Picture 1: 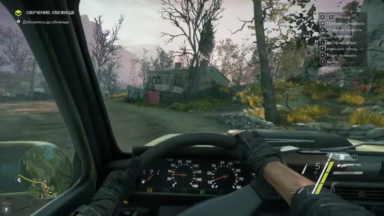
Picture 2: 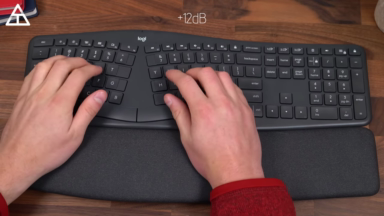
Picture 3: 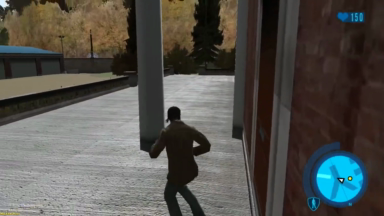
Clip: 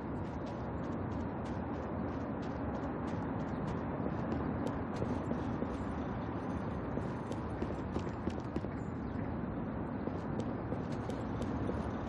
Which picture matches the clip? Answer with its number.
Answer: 3